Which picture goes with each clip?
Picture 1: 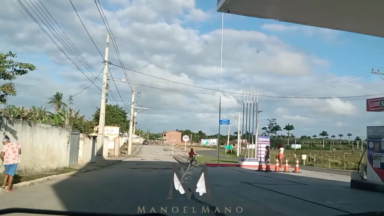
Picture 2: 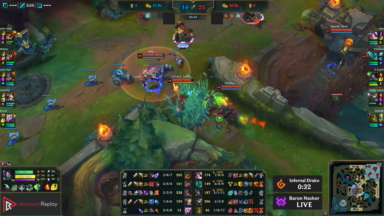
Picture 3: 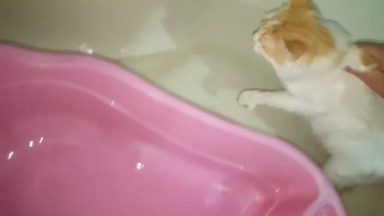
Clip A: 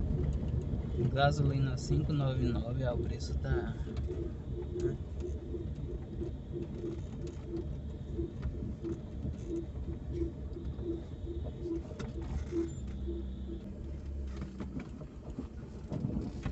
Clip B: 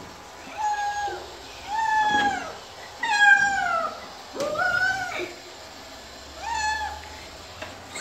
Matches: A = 1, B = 3